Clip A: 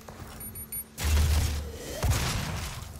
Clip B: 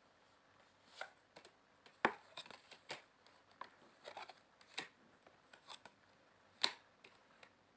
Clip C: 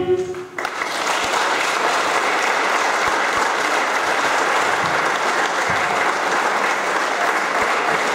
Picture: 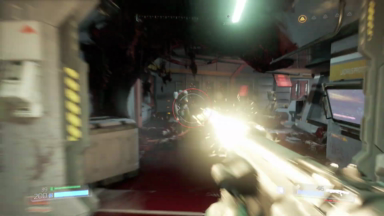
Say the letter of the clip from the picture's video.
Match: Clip A